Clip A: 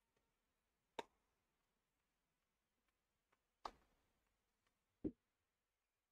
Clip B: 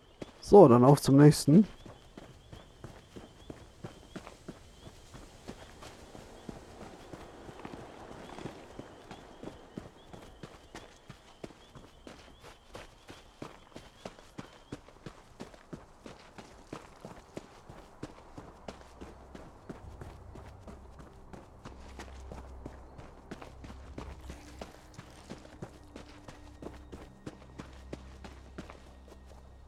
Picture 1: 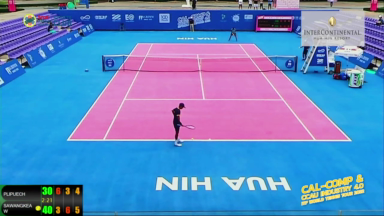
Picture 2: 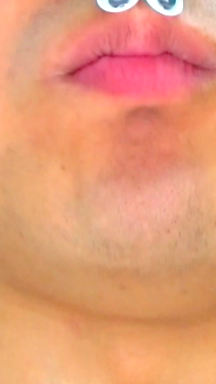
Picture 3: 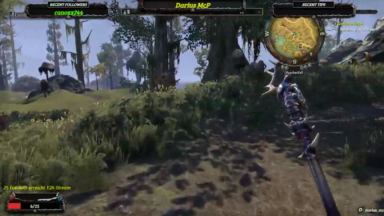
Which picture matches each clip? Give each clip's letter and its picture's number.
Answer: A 1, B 3